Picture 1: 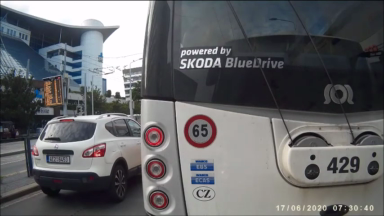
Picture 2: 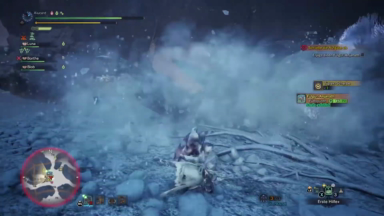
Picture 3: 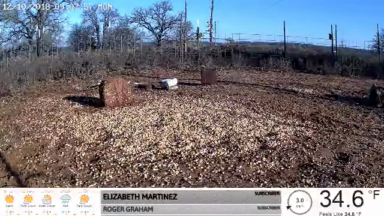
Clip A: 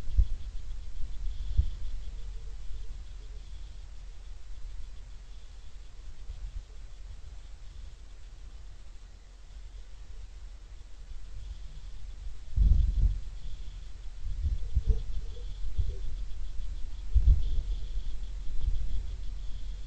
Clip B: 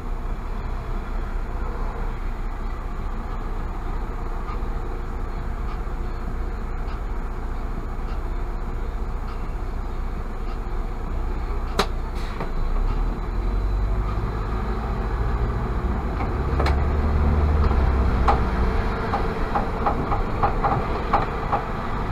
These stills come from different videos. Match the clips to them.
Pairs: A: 3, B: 1